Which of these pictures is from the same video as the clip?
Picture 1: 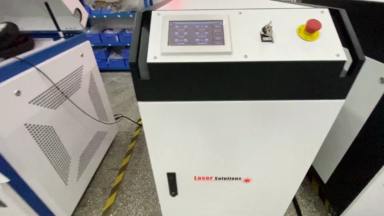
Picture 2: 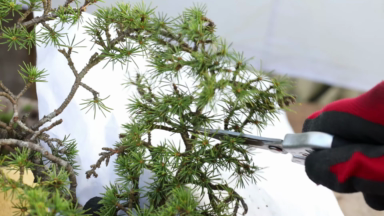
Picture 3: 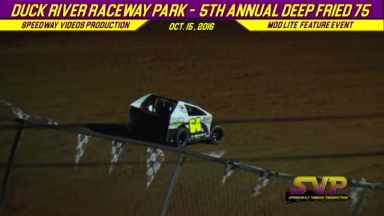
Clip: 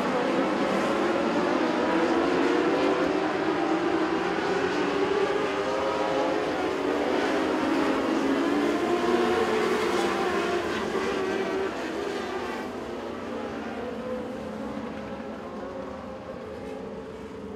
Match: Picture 3